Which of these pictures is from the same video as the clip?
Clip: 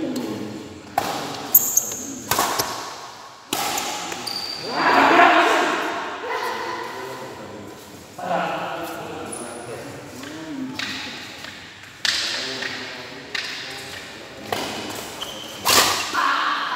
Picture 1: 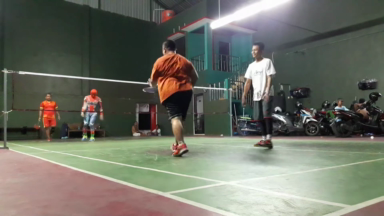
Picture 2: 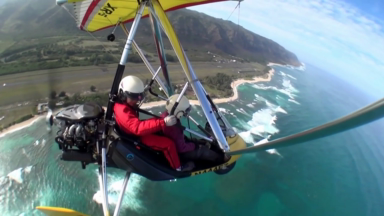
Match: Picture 1